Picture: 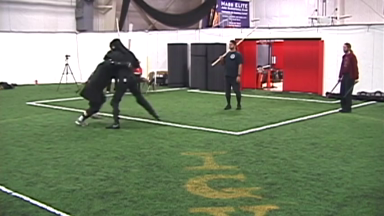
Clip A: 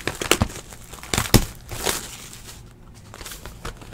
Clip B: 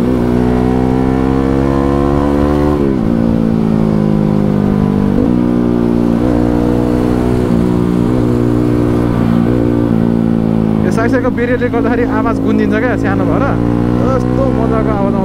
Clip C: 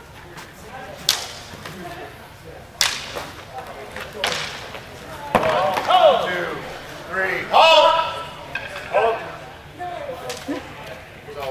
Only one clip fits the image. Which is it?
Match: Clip C